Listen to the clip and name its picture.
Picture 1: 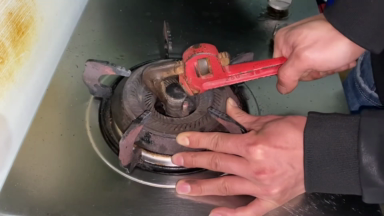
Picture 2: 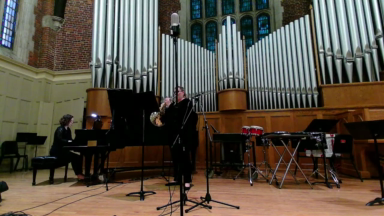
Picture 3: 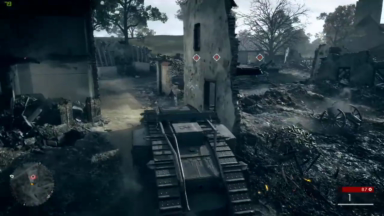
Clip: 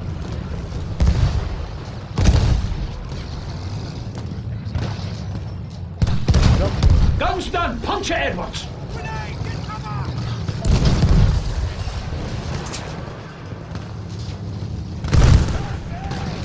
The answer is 3